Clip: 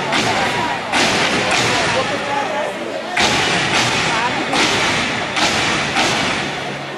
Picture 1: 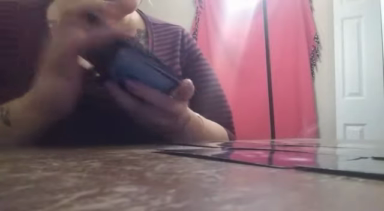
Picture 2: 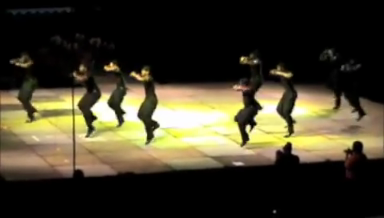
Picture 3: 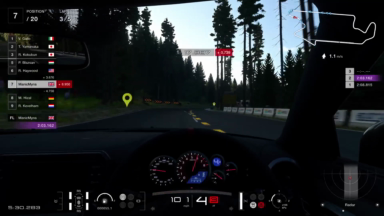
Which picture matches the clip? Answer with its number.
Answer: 2